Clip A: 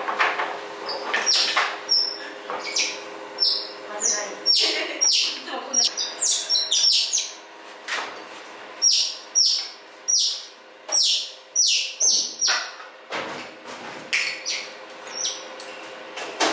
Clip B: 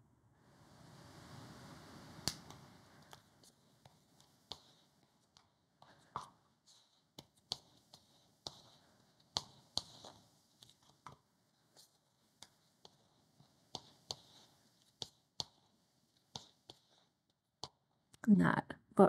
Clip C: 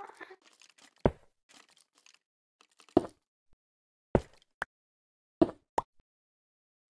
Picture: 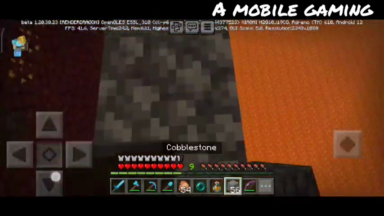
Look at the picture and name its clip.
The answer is C